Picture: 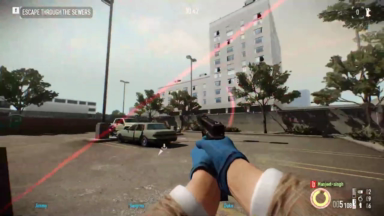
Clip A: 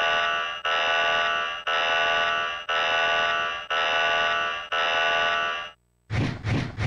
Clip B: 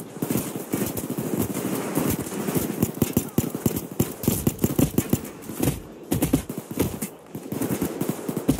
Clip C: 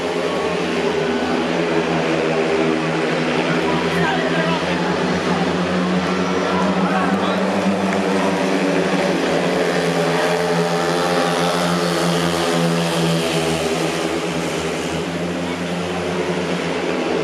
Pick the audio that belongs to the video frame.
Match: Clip B